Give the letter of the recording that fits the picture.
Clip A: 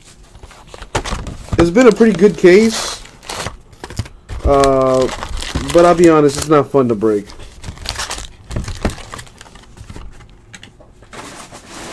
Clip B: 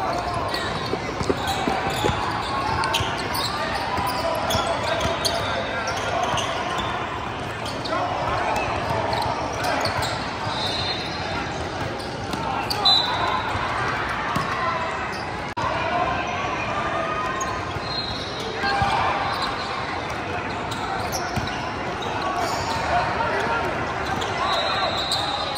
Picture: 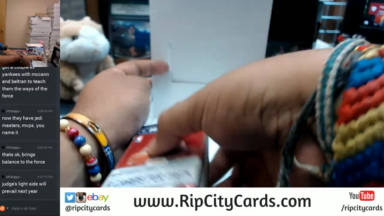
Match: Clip A